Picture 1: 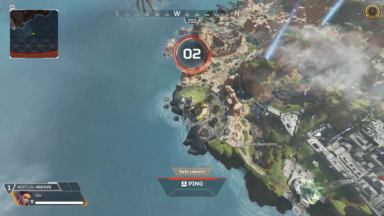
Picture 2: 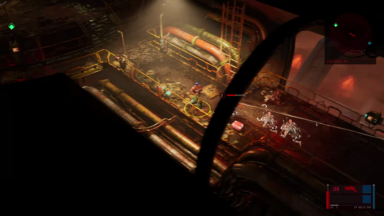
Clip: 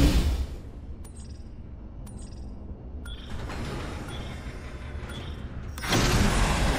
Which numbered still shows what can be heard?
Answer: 1